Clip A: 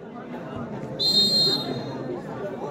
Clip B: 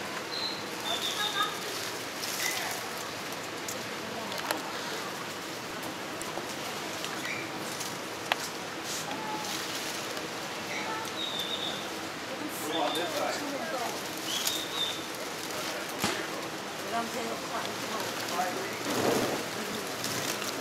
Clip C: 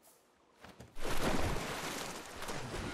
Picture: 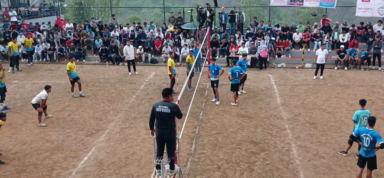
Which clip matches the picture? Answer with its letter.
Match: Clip A